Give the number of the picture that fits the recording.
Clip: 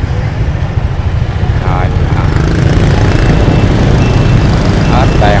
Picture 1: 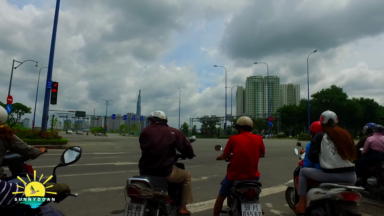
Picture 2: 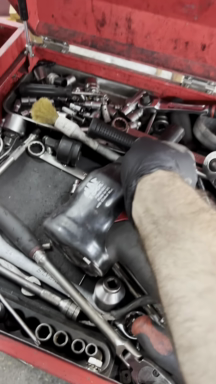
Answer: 1